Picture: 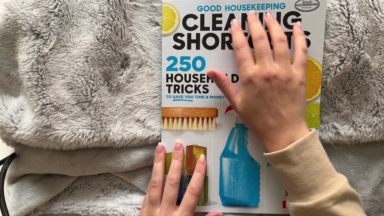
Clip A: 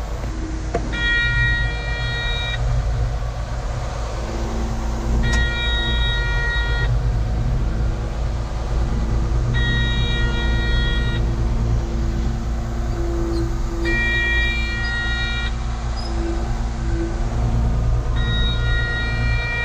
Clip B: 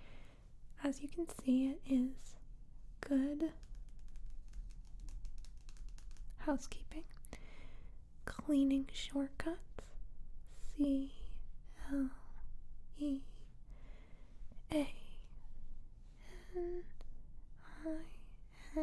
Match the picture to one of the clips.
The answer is B